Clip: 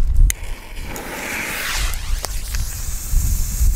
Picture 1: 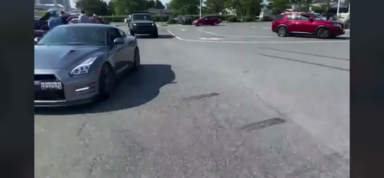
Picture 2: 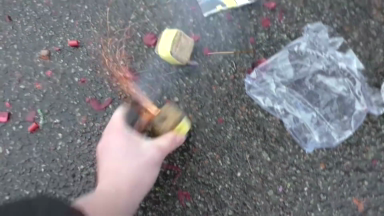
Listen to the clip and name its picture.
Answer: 2